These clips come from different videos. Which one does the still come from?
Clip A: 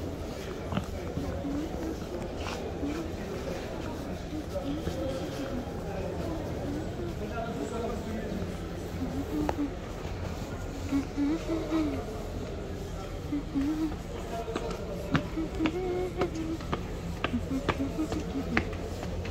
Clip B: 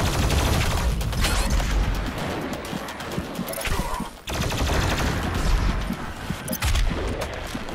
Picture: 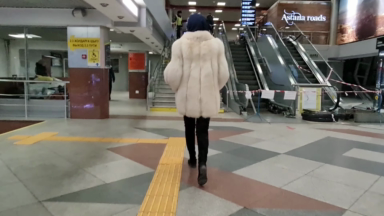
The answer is A